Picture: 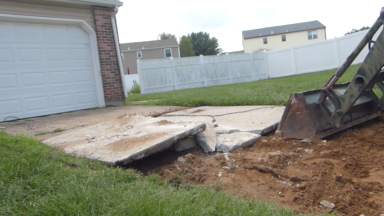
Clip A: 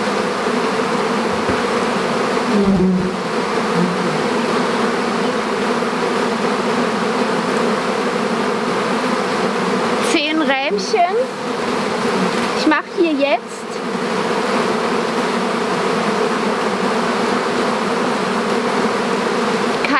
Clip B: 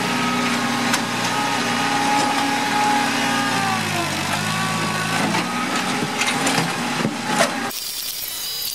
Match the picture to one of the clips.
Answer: B